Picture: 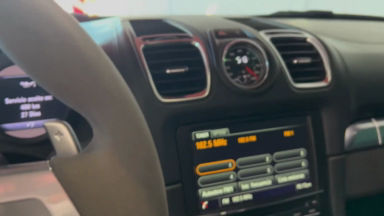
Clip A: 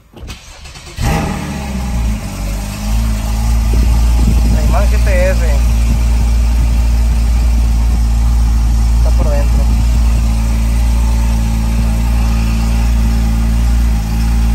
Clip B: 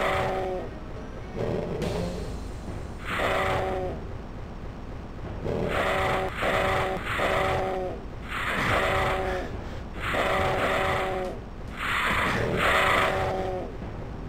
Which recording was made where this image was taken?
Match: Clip A